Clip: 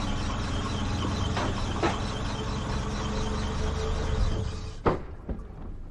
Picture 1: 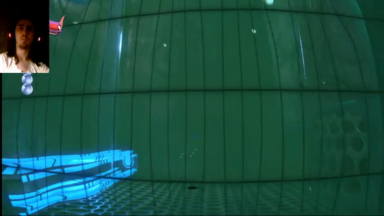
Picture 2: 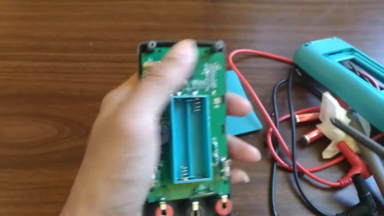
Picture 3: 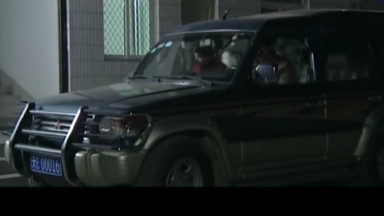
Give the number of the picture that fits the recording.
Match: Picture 3